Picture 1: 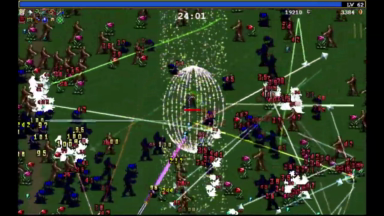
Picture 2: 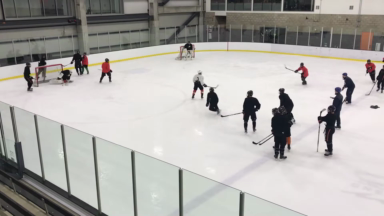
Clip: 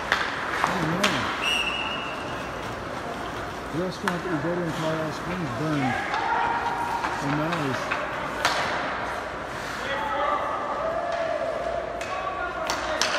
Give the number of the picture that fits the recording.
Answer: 2